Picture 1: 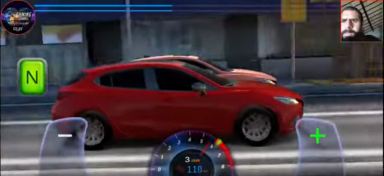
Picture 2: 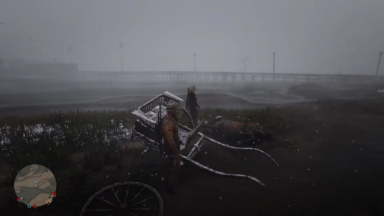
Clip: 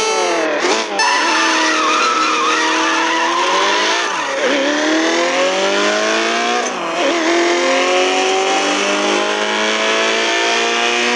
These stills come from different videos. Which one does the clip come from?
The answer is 1